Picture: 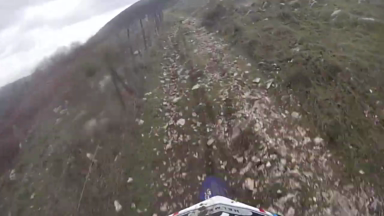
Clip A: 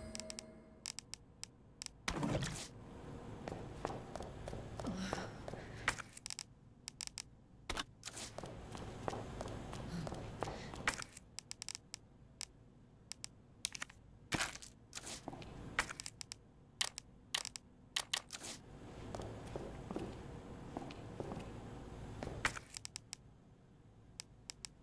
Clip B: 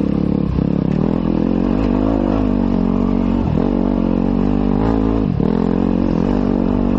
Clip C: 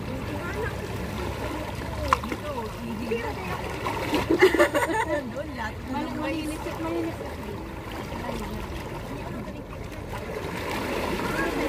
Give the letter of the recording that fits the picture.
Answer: B